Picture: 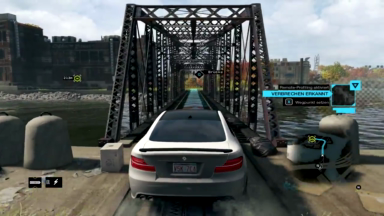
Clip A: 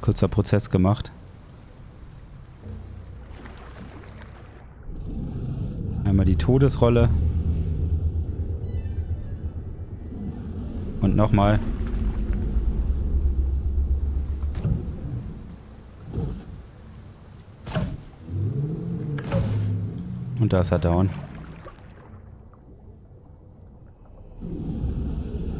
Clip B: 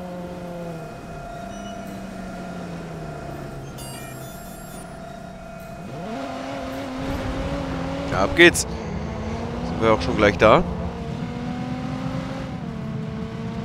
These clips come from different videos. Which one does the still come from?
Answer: B